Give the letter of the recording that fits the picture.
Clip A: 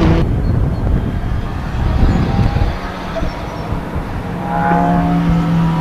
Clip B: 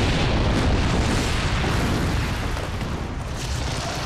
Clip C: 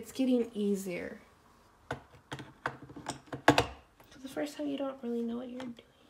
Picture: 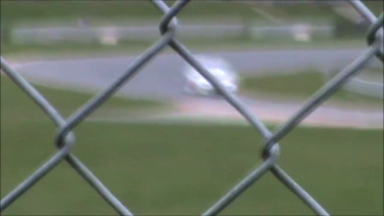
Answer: A